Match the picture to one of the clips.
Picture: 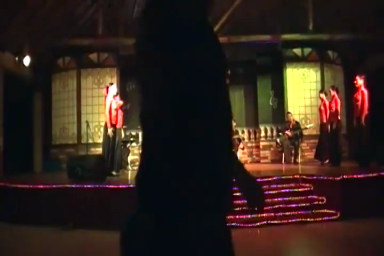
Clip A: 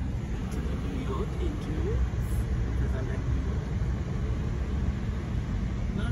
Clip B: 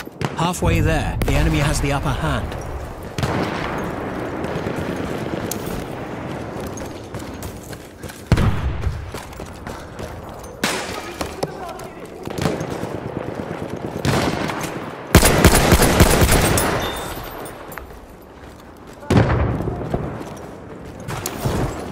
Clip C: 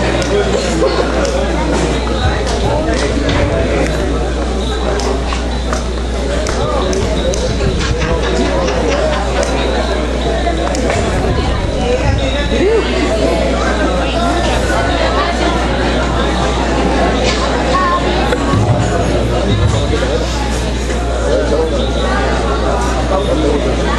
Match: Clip C